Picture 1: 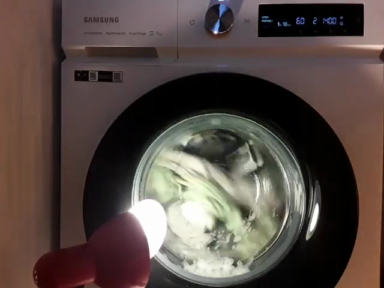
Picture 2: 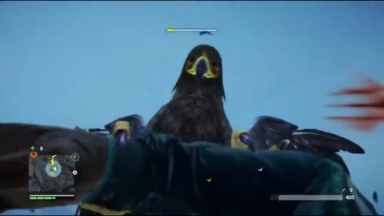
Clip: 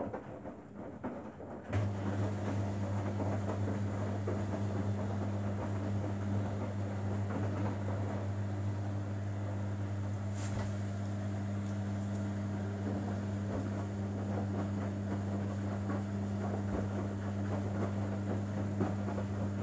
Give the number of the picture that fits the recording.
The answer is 1